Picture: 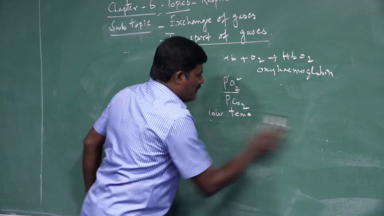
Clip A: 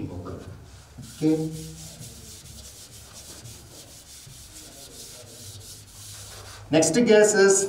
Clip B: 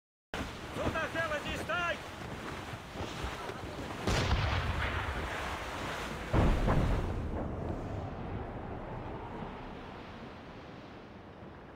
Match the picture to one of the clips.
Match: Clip A